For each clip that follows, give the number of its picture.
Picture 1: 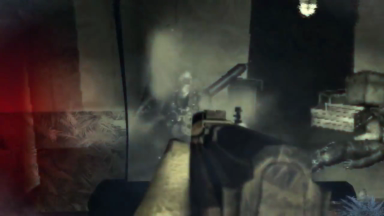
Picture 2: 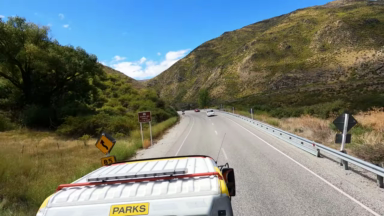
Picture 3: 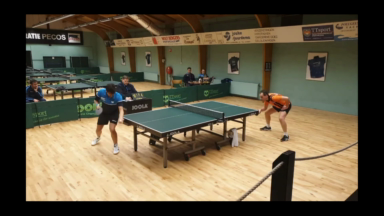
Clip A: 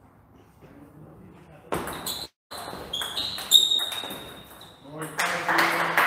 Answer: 3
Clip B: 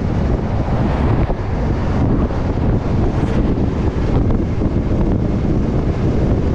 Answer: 2